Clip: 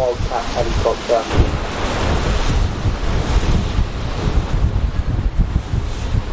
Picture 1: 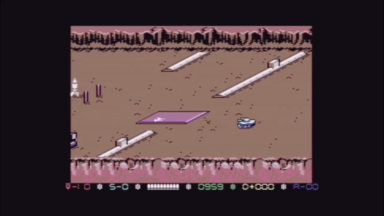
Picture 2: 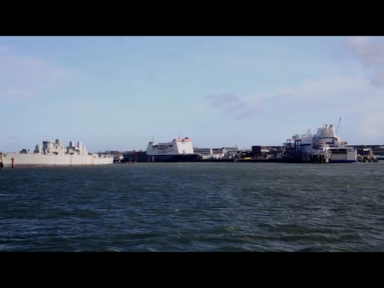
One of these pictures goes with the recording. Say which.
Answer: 2